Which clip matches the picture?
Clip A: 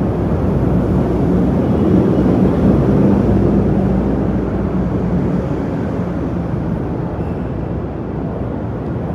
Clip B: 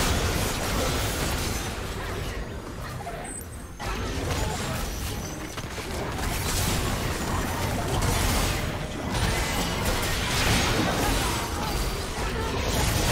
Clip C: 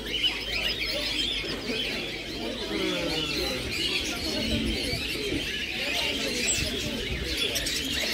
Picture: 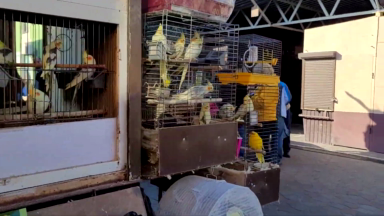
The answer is C